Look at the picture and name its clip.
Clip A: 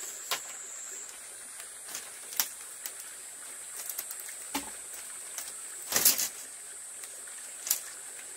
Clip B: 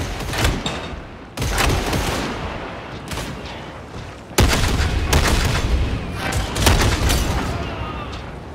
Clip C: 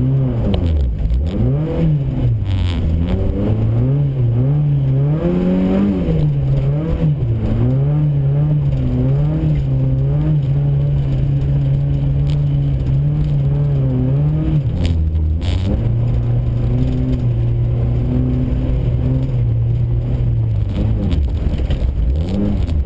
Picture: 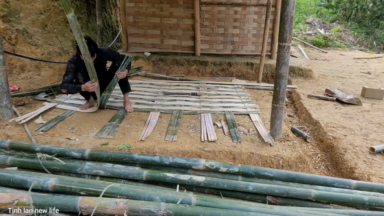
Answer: A